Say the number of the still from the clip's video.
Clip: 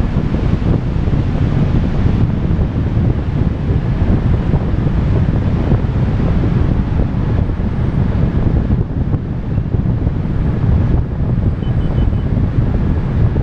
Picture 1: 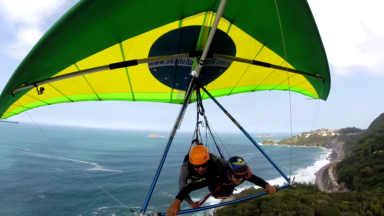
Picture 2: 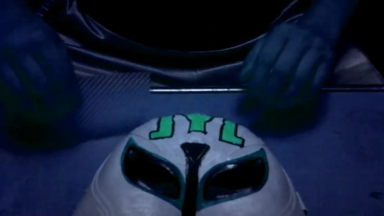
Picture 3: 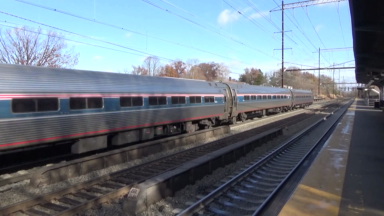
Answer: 1